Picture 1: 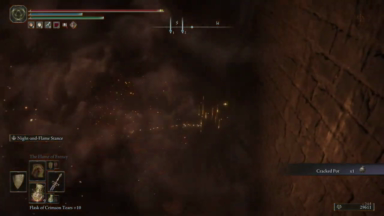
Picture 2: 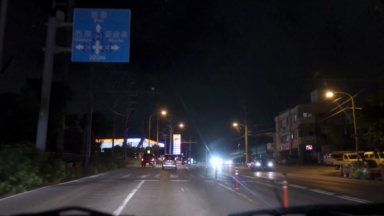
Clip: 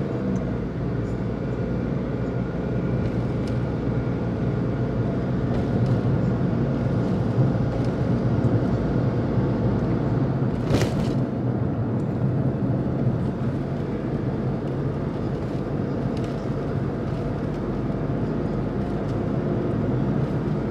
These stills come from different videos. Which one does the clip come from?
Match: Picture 2